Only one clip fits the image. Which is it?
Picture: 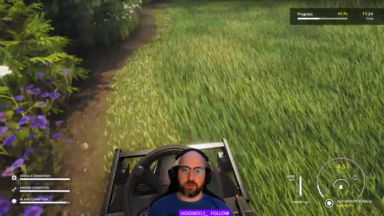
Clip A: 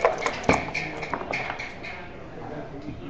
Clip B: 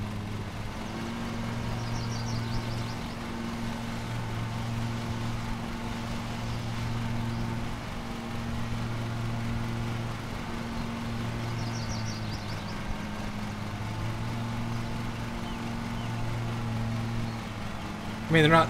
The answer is B